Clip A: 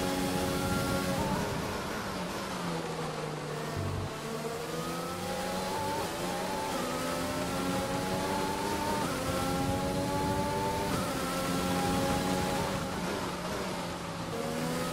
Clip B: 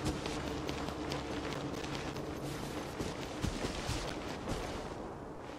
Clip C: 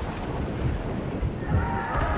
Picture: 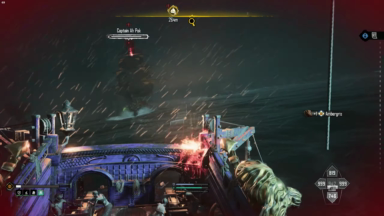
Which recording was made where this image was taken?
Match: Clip C